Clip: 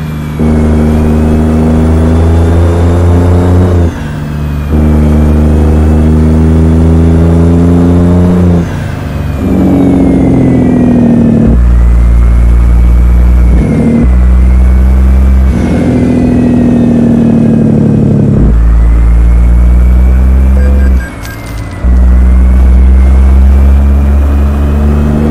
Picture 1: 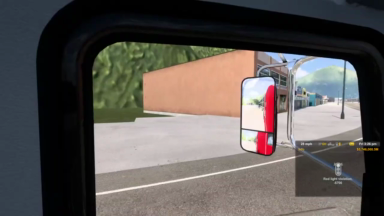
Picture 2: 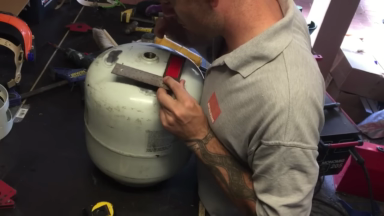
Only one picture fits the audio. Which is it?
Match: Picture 1